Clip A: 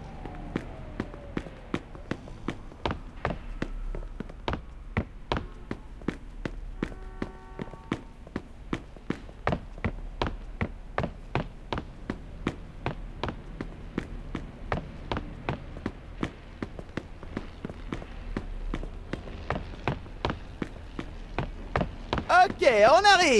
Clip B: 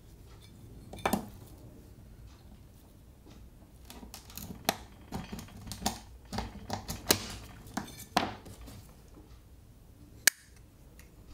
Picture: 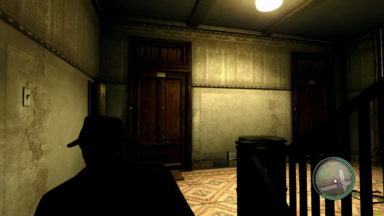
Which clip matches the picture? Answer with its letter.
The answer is A